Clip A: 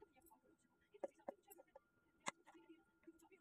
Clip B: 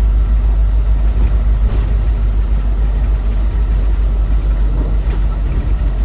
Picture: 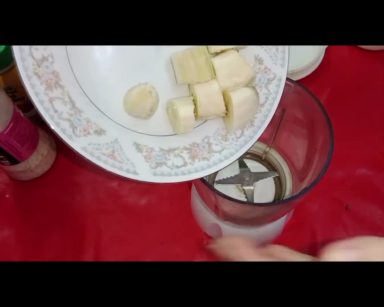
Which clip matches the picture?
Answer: A